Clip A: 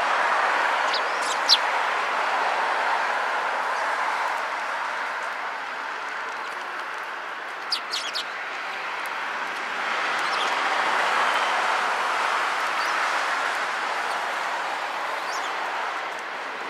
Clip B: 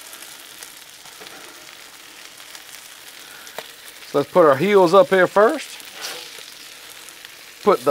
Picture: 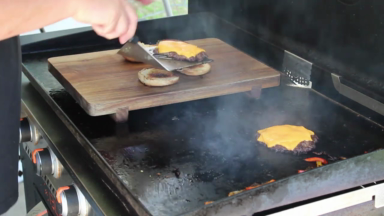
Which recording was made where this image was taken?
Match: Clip B